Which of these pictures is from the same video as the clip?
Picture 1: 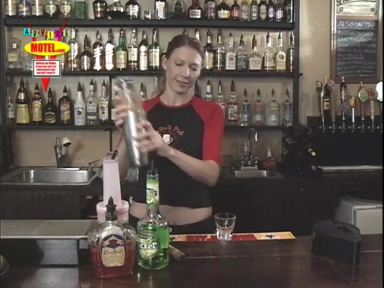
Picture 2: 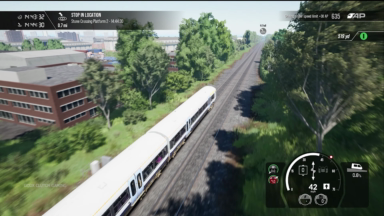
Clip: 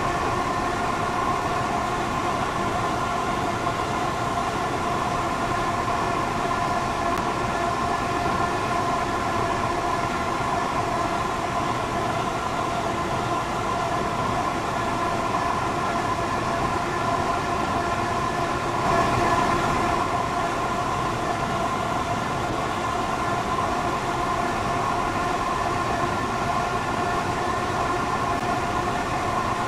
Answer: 2